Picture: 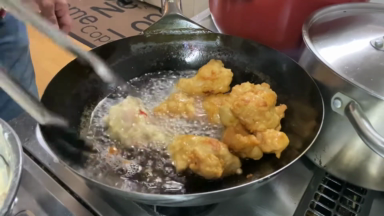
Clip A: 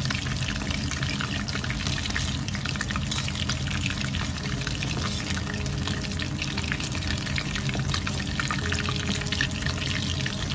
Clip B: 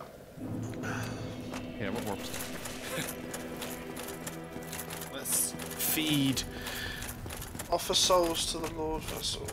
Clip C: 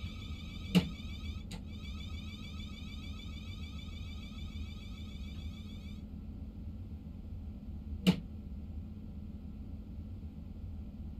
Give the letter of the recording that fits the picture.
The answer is A